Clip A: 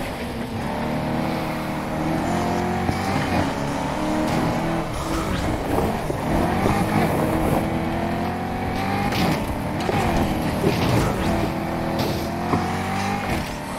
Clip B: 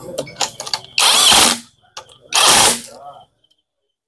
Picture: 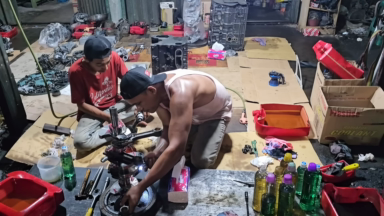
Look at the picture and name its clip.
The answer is B